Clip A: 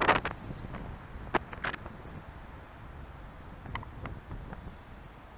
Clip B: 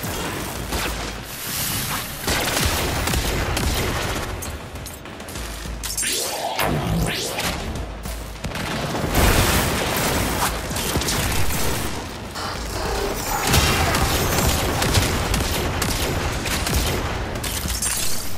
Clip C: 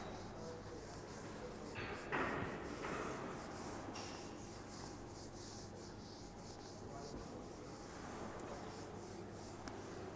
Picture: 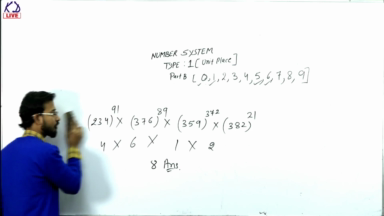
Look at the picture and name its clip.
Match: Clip C